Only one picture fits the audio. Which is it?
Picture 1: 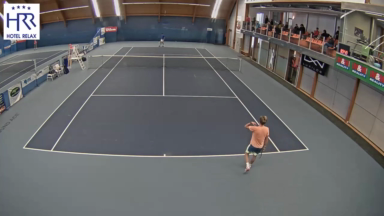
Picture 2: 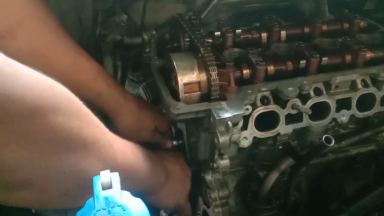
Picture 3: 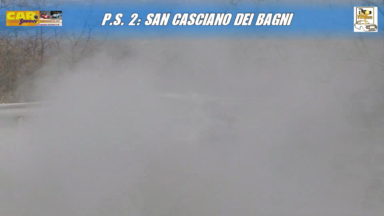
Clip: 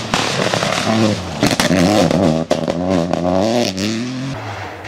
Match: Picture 3